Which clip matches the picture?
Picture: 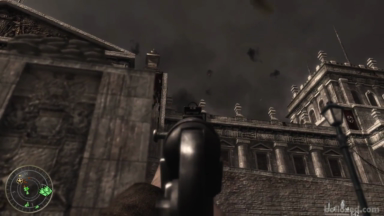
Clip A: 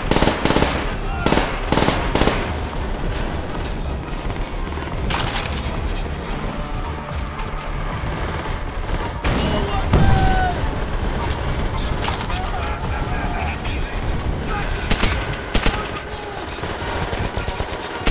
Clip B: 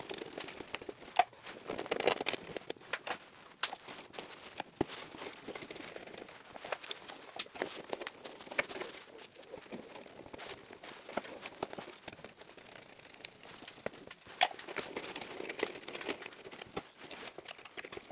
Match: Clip A